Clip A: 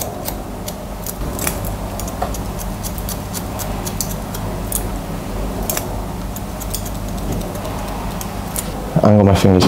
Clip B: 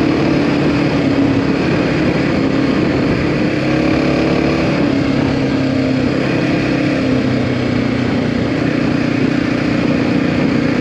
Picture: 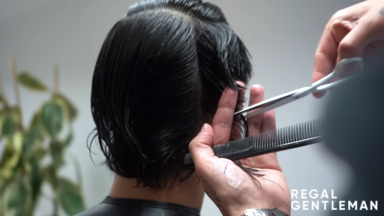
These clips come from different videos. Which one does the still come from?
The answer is A